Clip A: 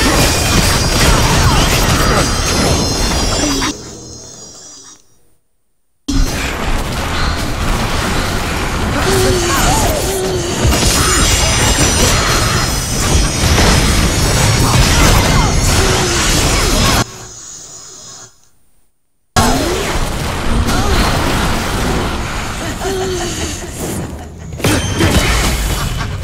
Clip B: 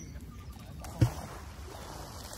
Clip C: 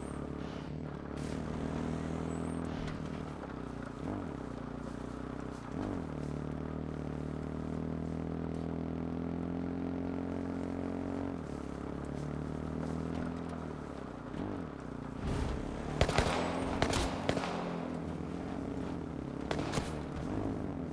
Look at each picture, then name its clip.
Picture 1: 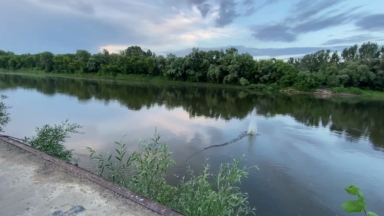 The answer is B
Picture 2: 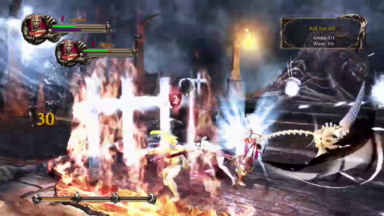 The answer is A